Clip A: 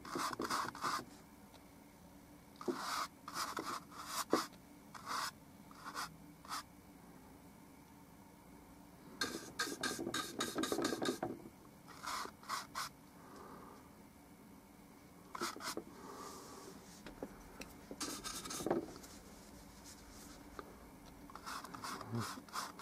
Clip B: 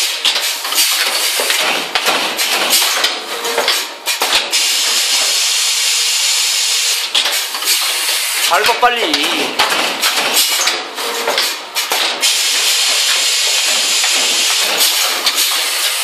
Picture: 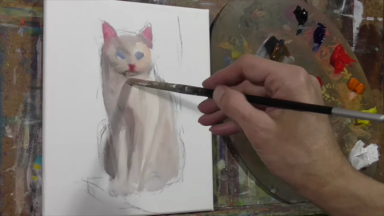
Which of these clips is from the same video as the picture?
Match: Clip A